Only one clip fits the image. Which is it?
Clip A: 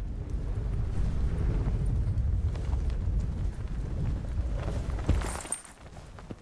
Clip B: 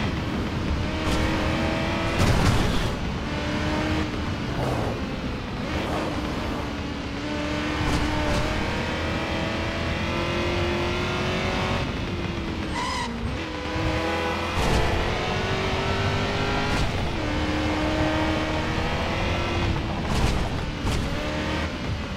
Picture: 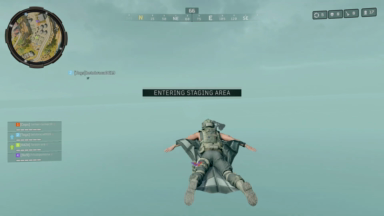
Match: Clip A